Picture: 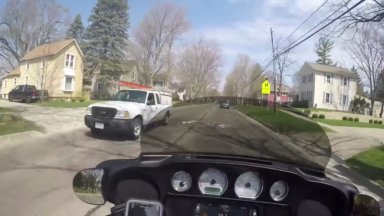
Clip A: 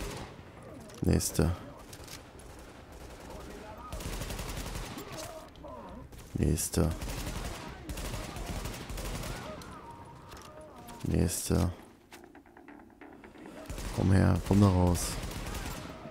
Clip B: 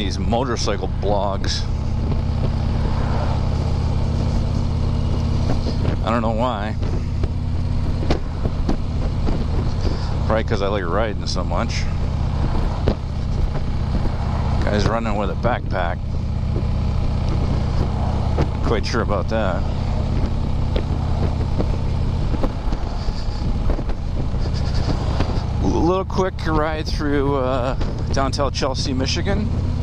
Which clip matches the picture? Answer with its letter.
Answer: B